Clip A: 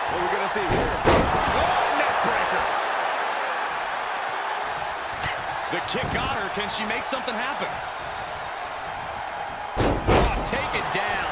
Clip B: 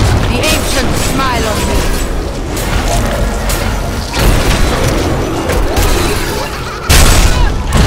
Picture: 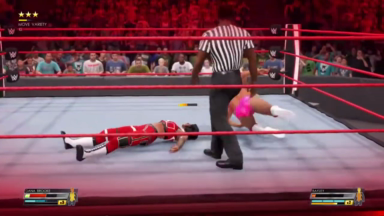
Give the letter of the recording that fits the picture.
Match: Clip A